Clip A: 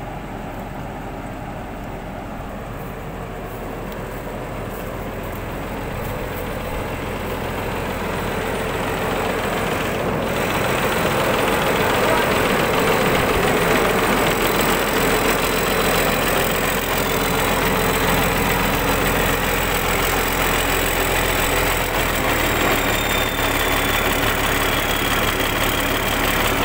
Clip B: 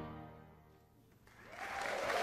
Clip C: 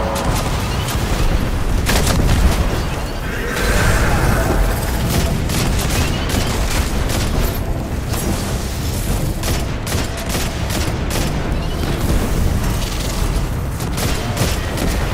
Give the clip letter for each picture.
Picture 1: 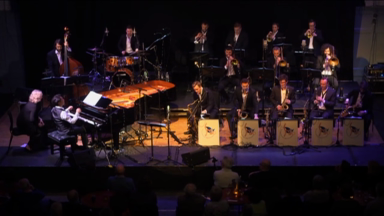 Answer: B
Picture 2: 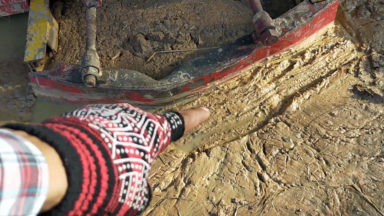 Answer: A